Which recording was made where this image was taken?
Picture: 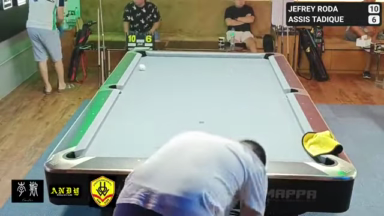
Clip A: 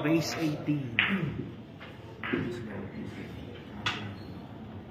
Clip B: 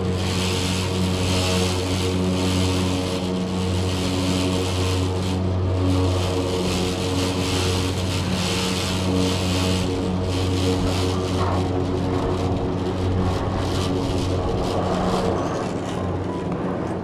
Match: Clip A